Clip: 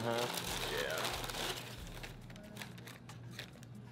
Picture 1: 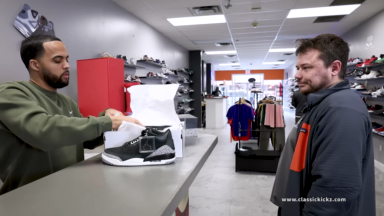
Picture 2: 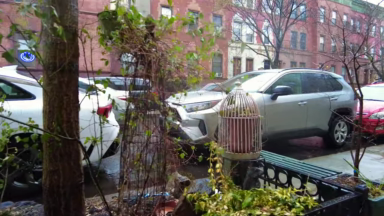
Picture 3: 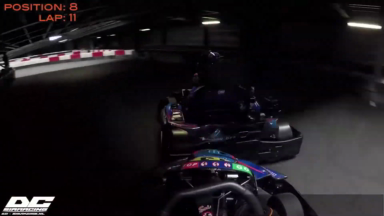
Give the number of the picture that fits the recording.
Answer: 1